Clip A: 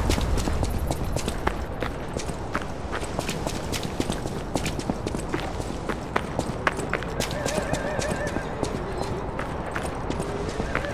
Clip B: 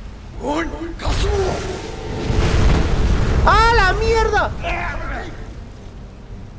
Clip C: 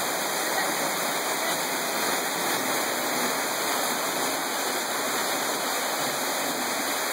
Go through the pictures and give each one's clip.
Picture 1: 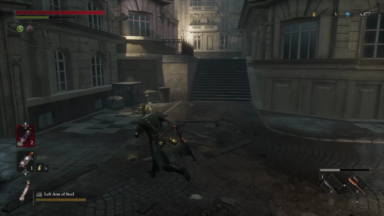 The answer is A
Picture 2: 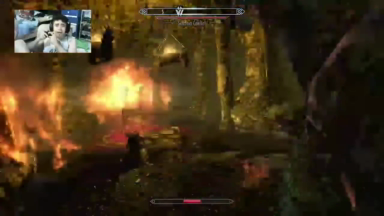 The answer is B